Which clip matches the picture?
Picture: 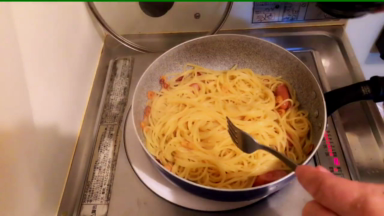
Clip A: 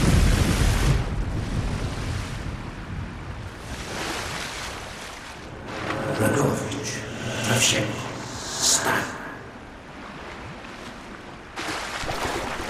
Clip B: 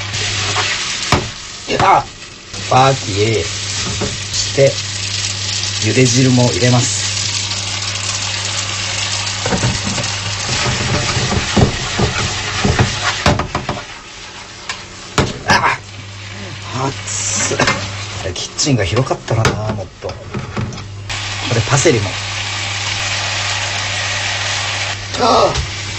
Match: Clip B